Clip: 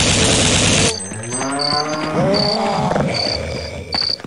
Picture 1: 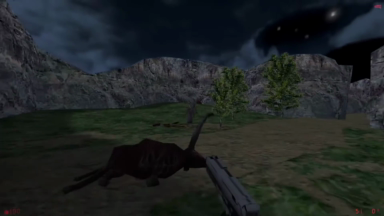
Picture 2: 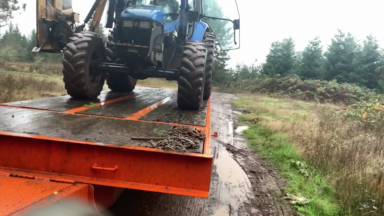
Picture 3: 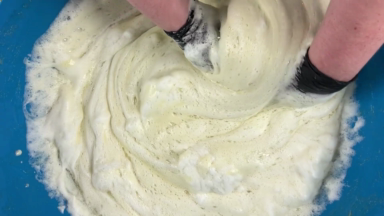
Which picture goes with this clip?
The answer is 1